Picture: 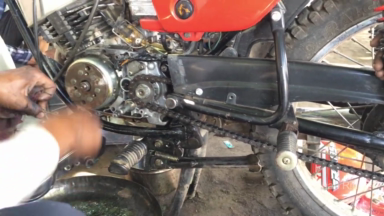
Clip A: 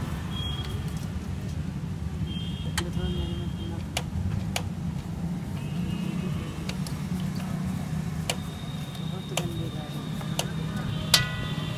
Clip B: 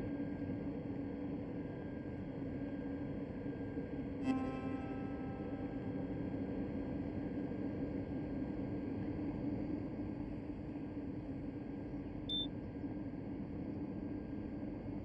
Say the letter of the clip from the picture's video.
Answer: A